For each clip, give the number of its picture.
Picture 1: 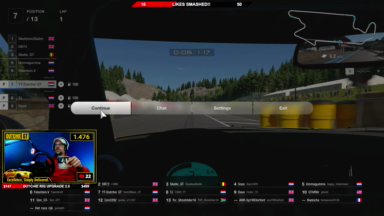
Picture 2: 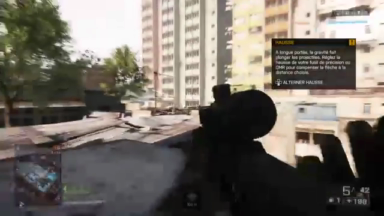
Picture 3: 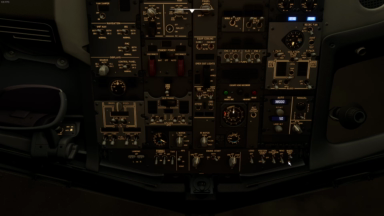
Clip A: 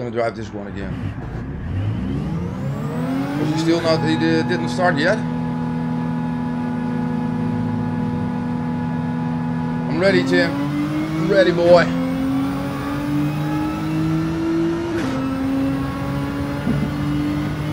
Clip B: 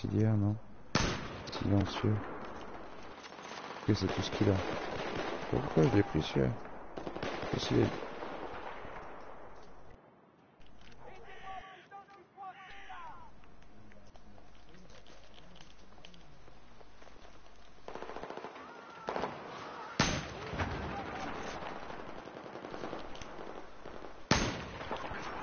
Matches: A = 1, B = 2